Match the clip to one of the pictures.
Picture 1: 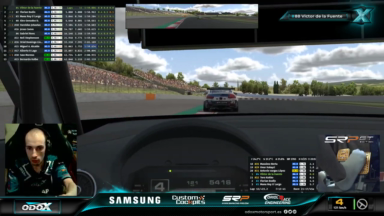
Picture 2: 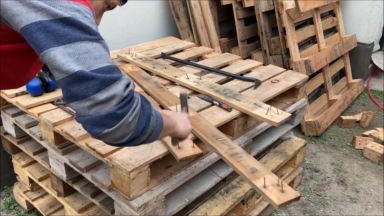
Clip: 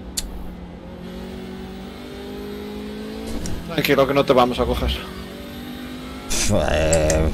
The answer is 1